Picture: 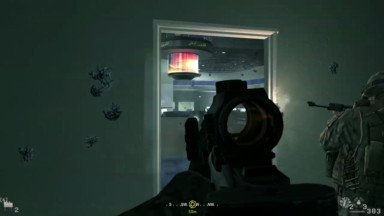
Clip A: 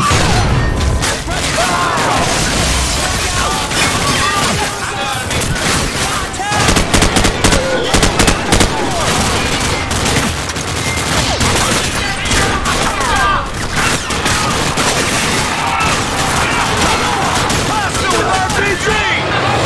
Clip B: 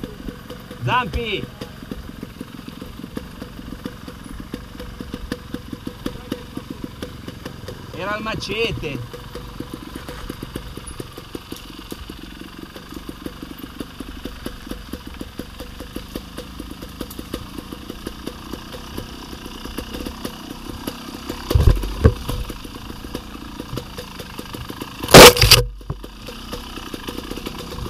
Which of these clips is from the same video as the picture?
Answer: A